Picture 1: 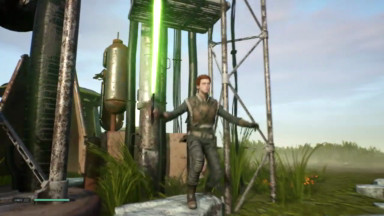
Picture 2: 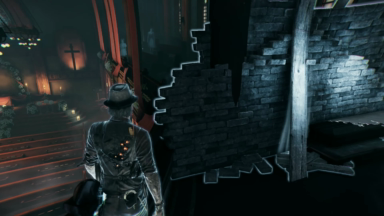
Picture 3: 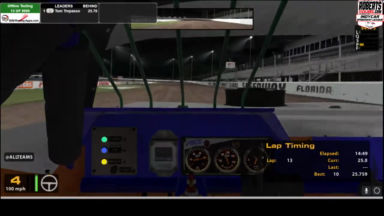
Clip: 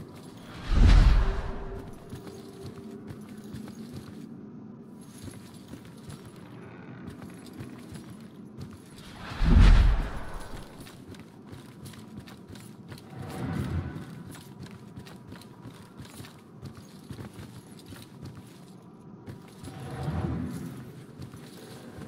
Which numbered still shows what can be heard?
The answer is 2